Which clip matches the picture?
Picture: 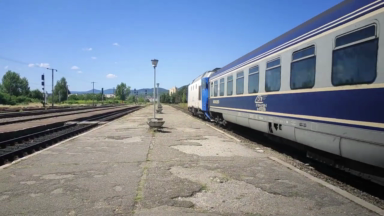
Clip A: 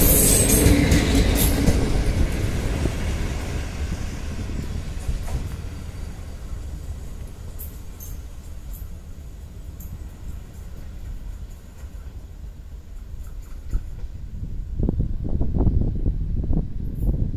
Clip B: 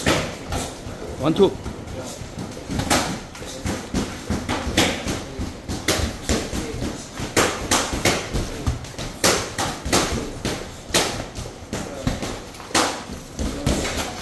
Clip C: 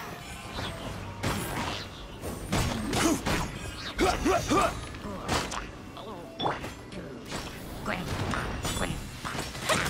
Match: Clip A